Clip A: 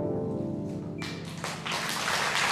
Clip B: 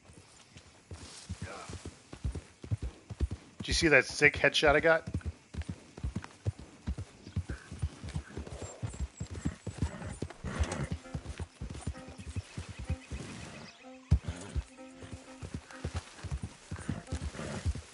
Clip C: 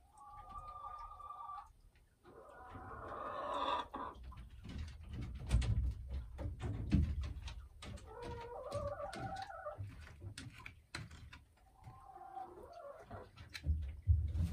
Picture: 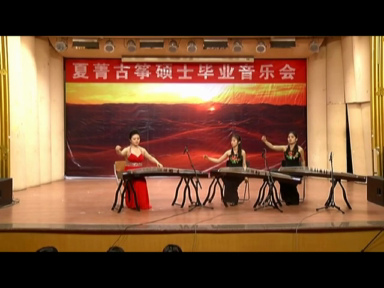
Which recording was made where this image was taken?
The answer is A